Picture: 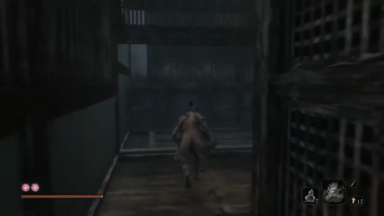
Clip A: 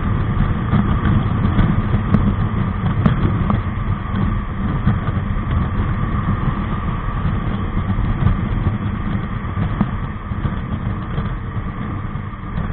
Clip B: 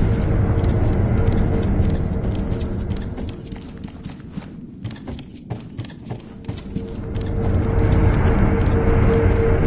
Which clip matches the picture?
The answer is B